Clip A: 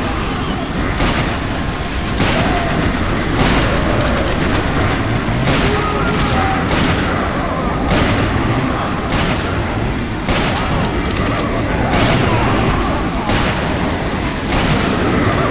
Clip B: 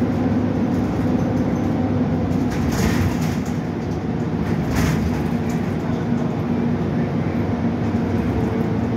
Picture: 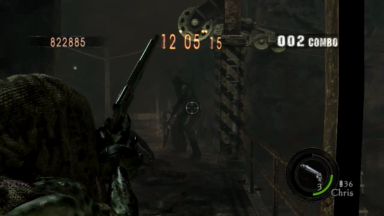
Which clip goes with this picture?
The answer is A